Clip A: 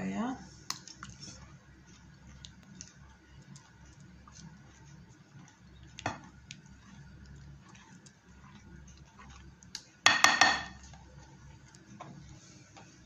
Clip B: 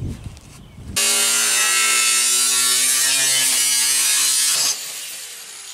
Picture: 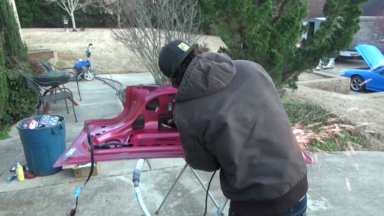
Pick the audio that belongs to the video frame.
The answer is B